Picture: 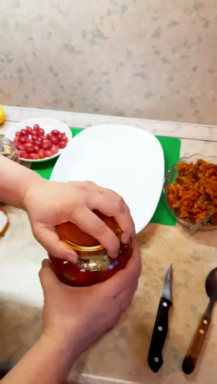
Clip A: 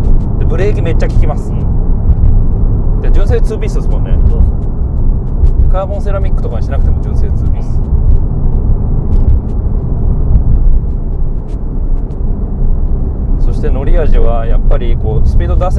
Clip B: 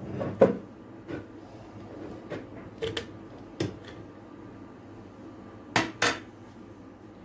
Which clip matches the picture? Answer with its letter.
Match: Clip B